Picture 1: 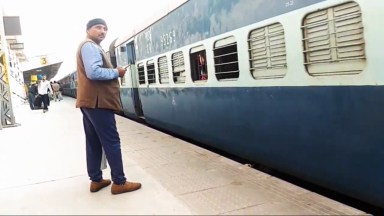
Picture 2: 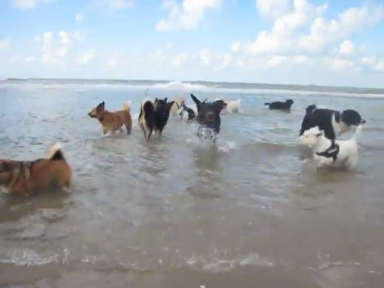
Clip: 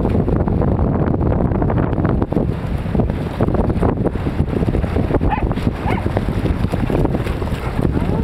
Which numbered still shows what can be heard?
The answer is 2